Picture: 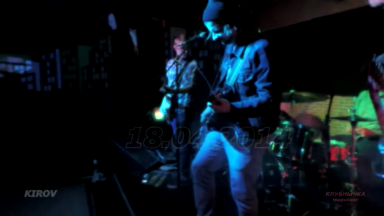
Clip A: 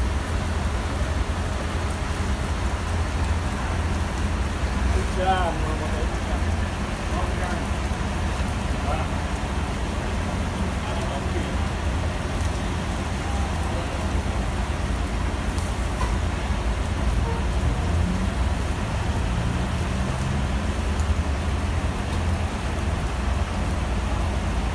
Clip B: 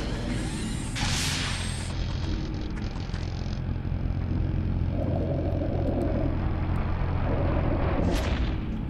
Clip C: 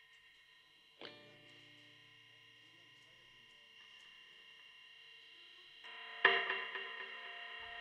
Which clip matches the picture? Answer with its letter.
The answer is C